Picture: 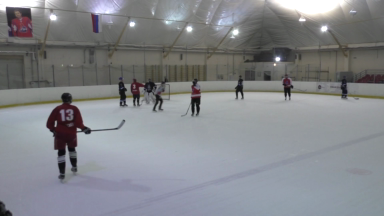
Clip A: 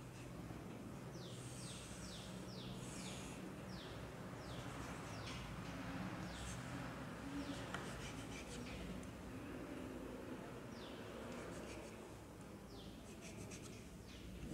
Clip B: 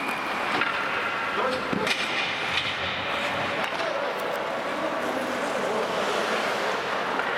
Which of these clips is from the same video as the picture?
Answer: B